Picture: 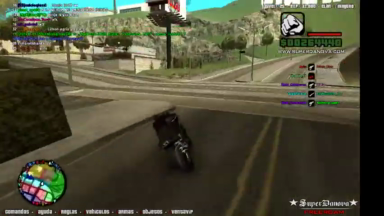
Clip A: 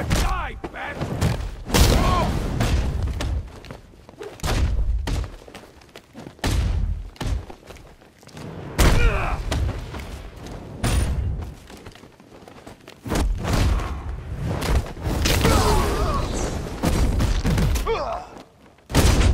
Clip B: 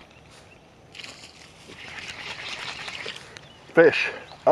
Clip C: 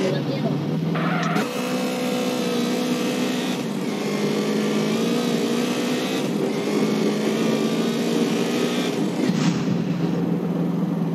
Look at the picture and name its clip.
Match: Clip C